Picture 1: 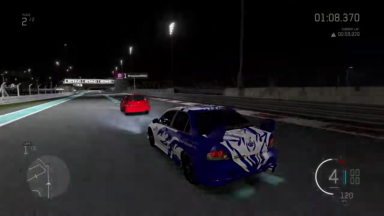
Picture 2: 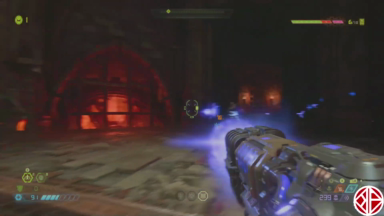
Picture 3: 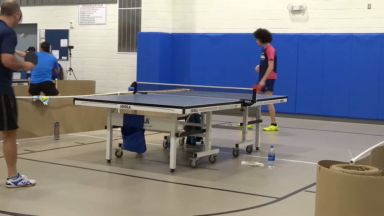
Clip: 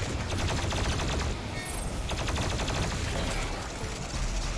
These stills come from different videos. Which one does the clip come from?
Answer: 2